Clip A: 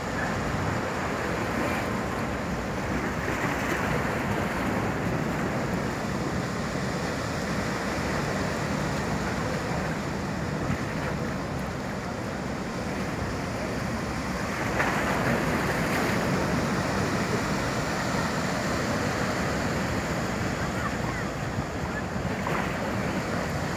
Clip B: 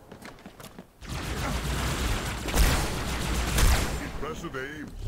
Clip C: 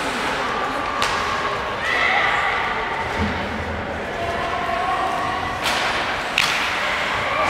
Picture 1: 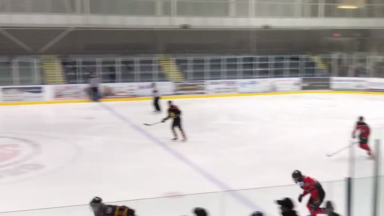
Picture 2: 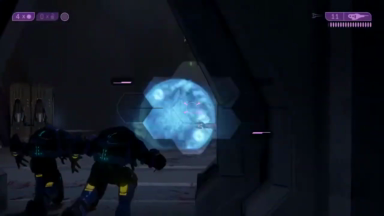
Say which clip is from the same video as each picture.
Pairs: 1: C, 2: B